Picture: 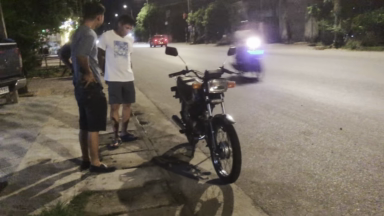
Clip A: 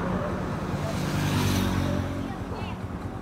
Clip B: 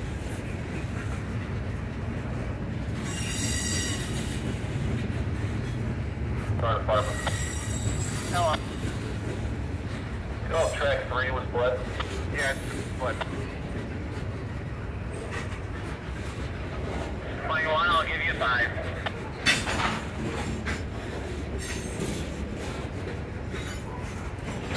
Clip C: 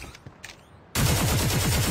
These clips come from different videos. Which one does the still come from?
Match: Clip A